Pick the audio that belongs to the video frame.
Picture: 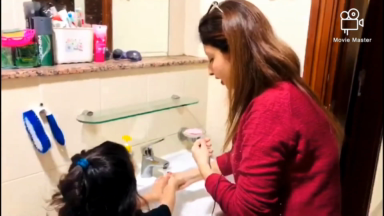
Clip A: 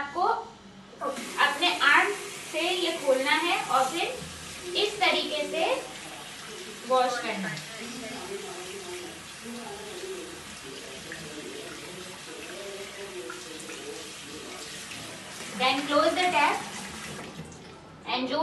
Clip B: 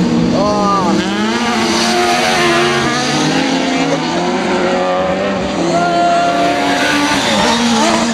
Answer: A